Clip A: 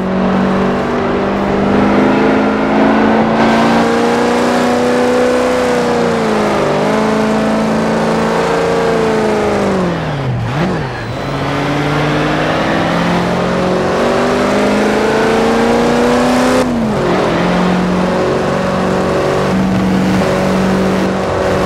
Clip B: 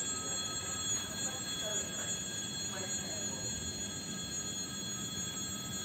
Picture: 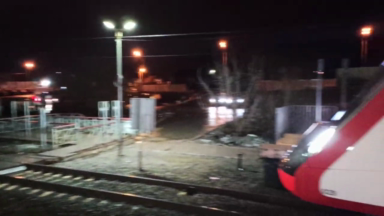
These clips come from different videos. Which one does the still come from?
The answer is B